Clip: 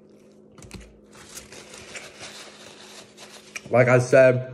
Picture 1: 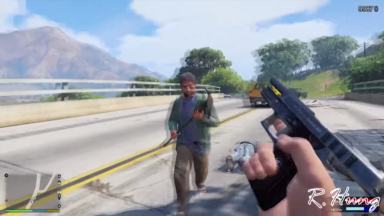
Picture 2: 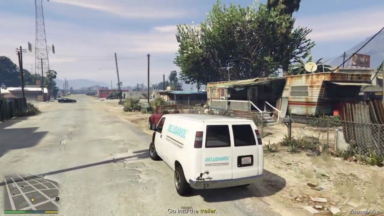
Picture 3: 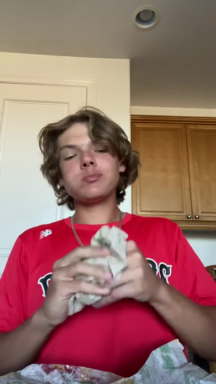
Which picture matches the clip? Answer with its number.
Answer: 3